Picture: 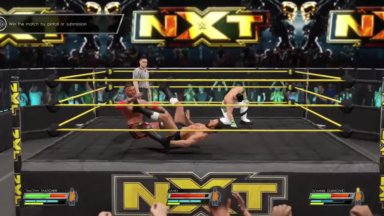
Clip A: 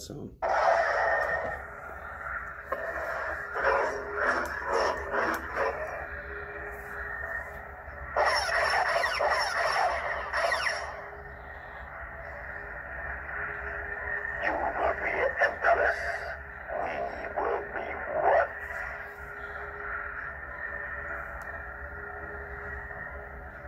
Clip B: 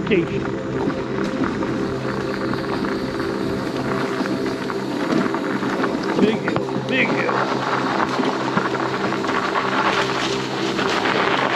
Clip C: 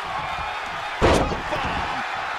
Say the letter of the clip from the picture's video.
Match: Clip C